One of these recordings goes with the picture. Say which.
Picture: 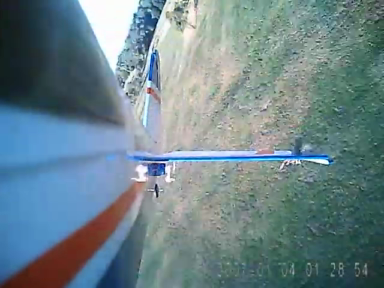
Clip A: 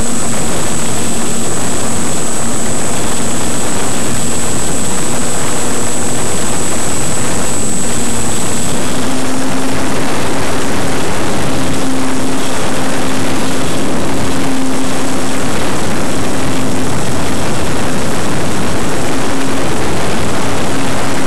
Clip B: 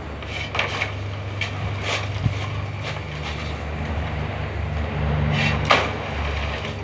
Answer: A